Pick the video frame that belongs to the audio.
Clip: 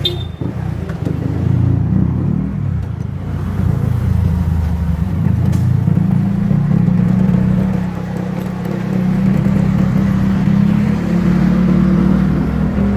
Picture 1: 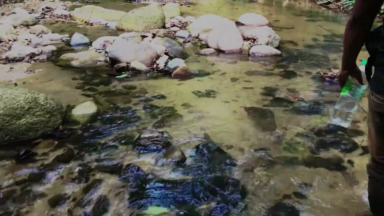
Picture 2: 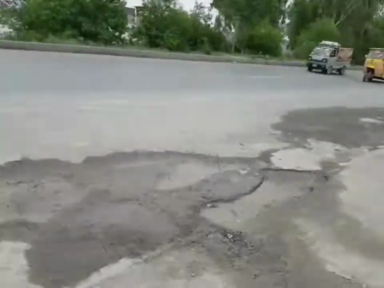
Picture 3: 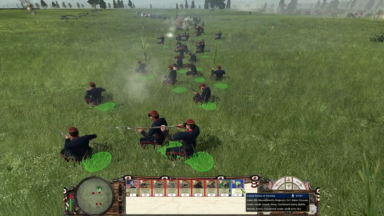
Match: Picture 2